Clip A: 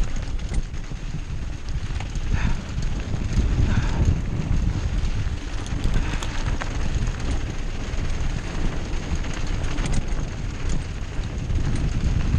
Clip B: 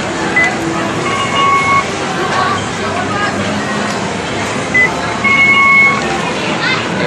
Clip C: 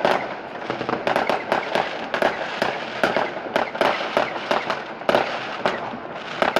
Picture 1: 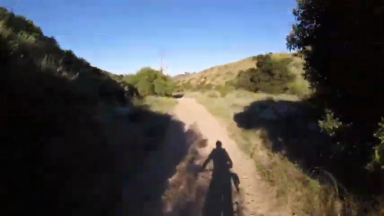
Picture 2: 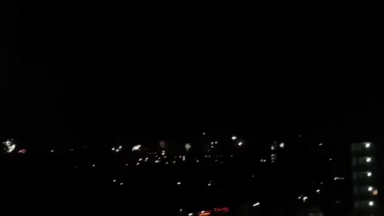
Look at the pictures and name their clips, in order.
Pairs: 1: A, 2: C